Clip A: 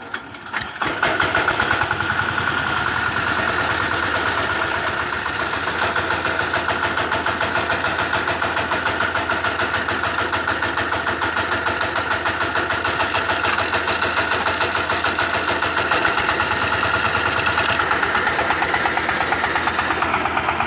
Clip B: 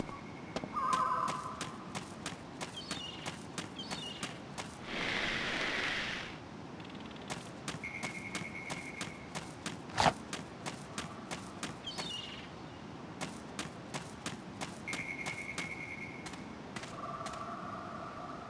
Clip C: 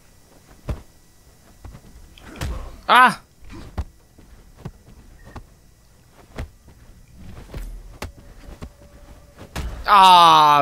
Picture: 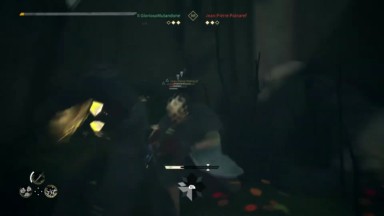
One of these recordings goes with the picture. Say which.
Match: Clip C